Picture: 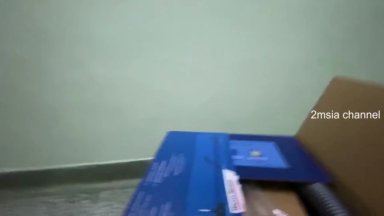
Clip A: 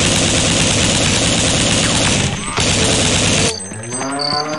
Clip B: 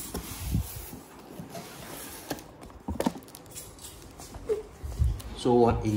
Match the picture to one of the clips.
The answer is B